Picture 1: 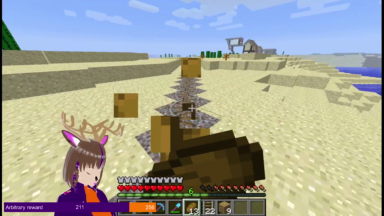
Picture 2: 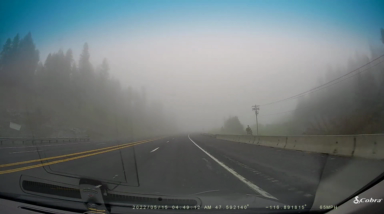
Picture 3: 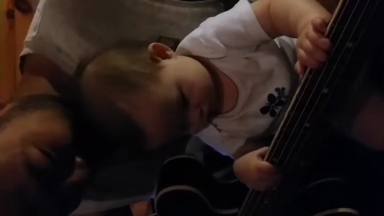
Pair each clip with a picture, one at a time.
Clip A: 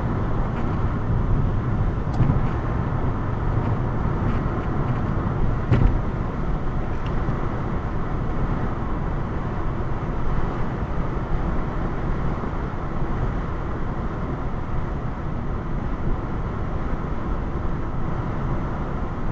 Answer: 2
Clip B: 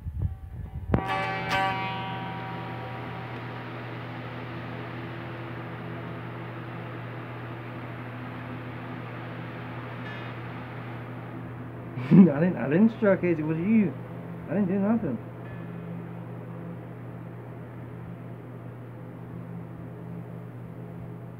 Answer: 3